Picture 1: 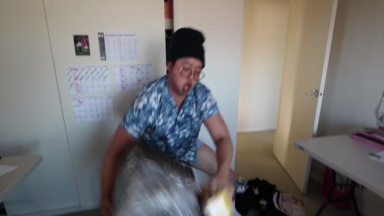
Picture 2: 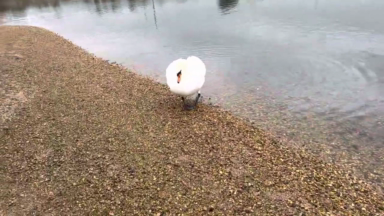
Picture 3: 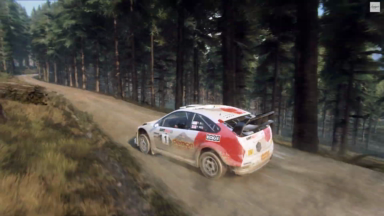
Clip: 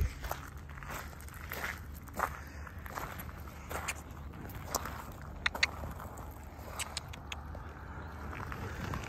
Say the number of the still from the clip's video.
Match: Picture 2